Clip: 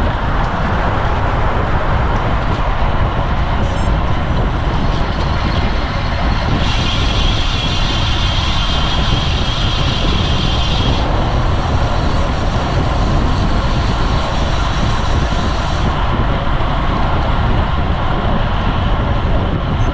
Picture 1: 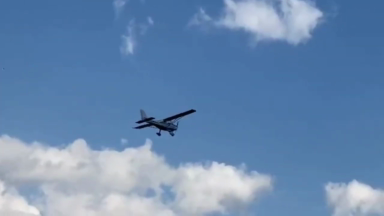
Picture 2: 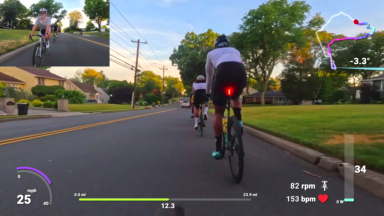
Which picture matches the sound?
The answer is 2